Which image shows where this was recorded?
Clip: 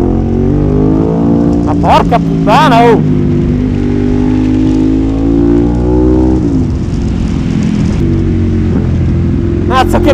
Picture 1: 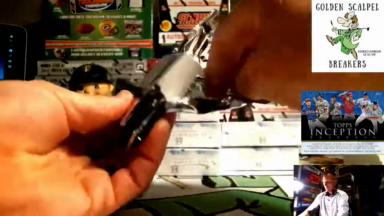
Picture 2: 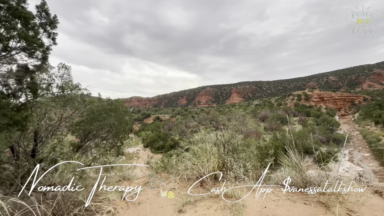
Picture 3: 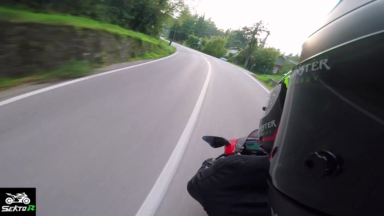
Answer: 3